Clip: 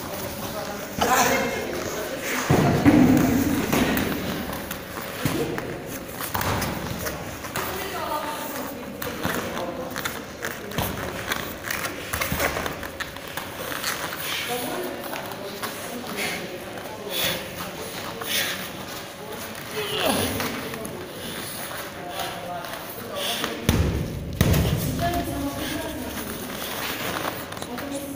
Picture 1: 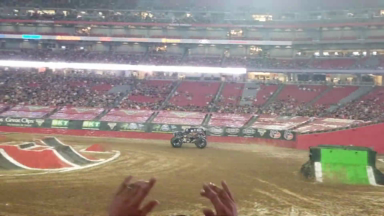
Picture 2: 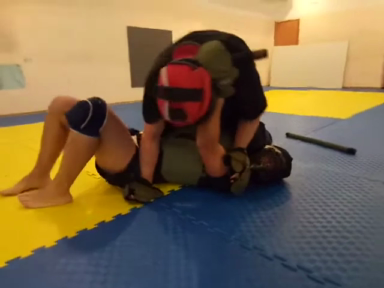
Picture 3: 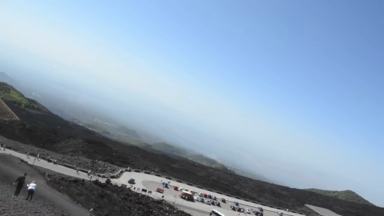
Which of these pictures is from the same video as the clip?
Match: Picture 2